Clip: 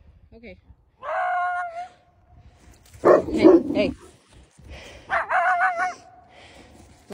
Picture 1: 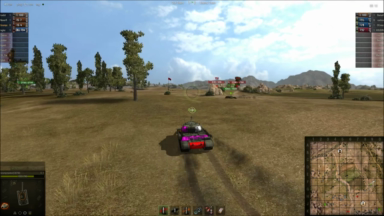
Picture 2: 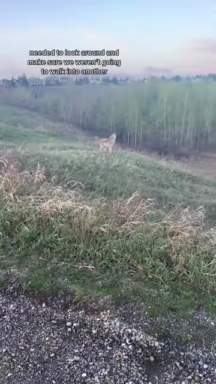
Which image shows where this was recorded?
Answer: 2